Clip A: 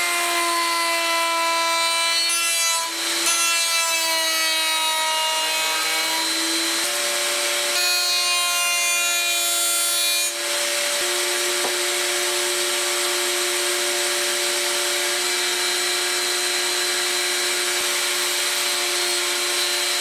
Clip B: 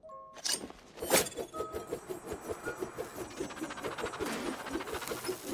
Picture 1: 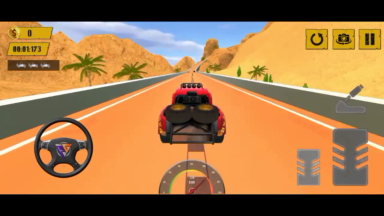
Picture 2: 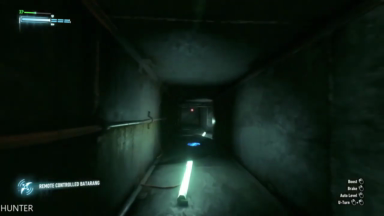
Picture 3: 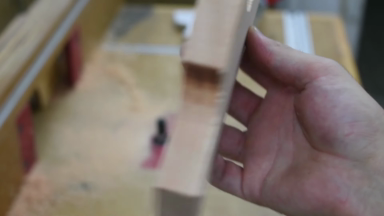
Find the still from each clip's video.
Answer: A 3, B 2